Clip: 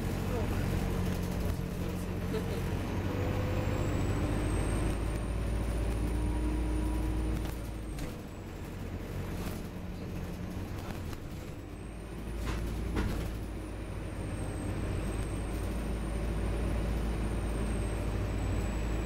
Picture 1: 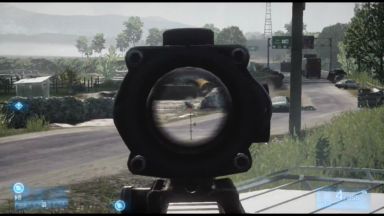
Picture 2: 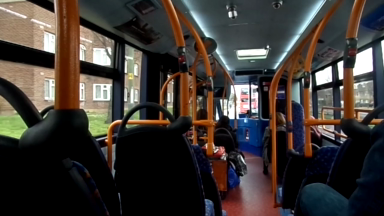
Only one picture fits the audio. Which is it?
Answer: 2